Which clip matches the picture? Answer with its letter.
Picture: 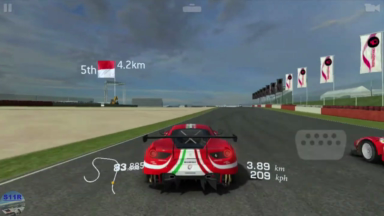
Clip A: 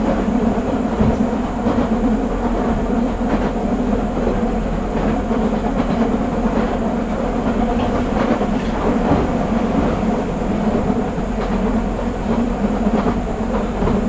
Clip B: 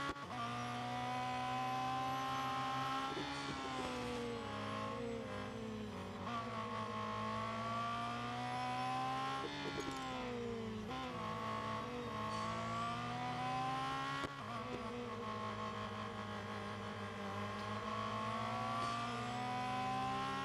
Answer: B